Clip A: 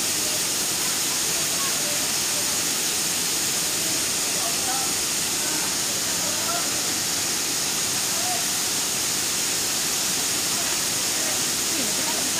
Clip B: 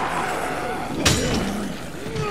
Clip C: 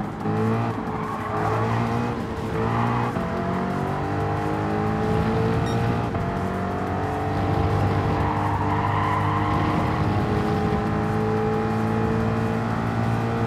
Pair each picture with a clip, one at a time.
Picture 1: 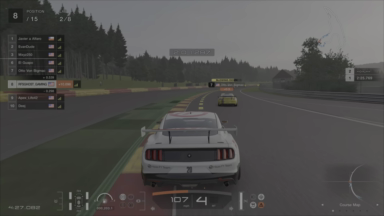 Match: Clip C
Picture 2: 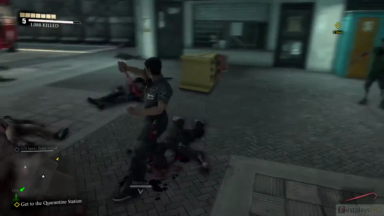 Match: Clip B